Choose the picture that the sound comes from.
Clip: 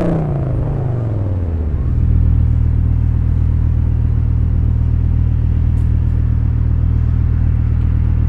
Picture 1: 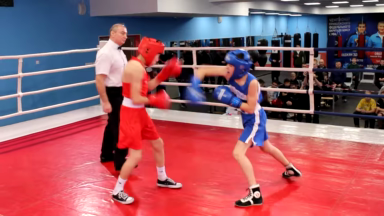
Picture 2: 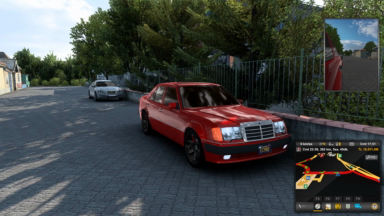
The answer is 2